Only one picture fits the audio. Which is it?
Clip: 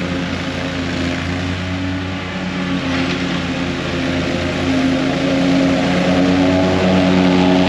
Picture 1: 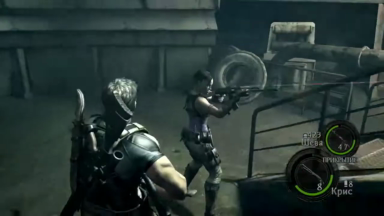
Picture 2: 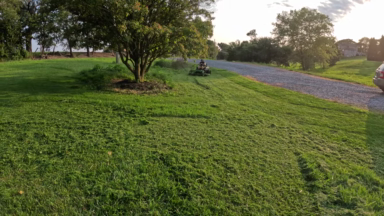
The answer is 2